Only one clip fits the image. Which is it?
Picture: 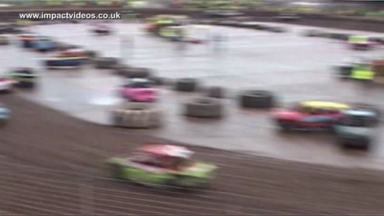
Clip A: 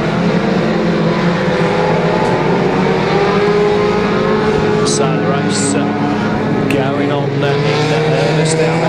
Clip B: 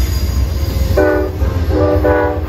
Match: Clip A